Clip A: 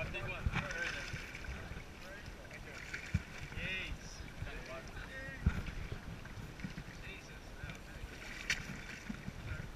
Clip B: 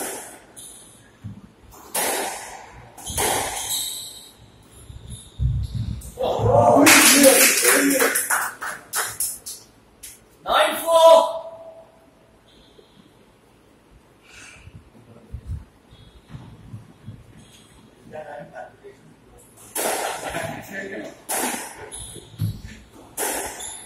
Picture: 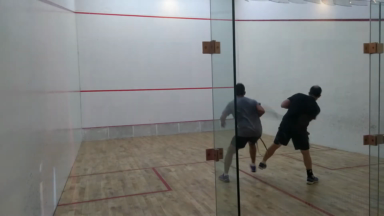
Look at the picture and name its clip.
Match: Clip B